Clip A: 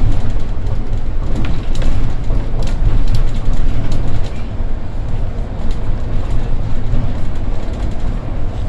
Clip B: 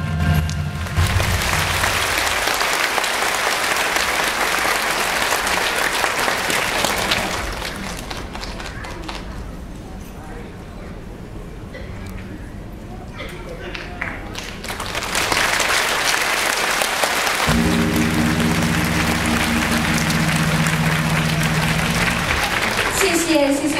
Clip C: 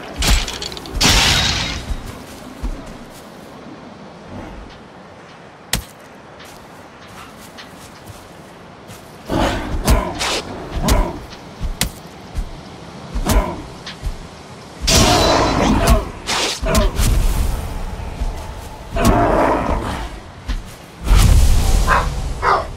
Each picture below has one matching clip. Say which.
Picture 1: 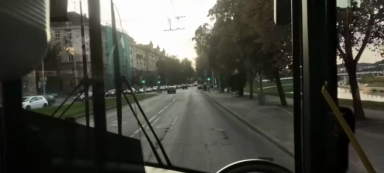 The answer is A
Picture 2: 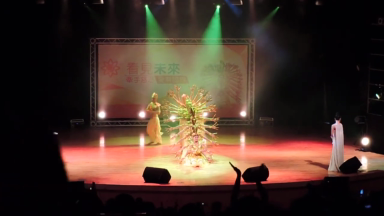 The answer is B